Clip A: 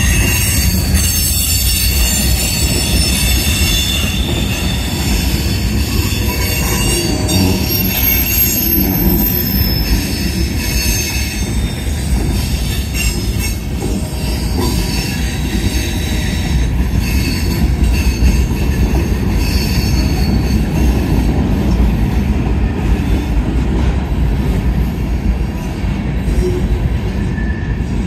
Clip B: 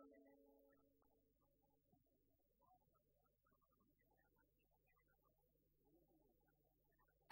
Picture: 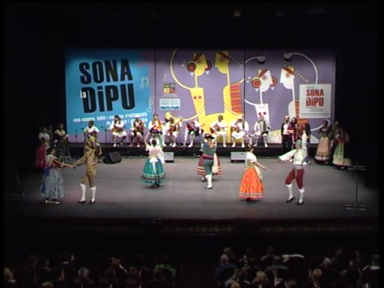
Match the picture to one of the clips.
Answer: B